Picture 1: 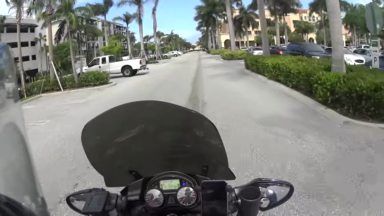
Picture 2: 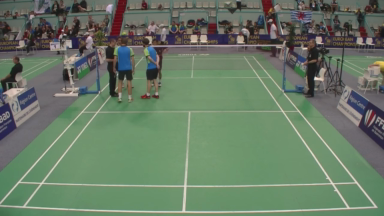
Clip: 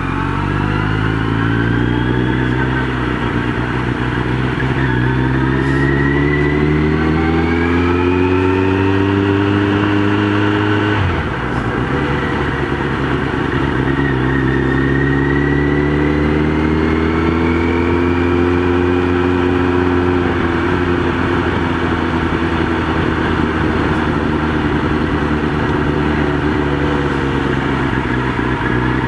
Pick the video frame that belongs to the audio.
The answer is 1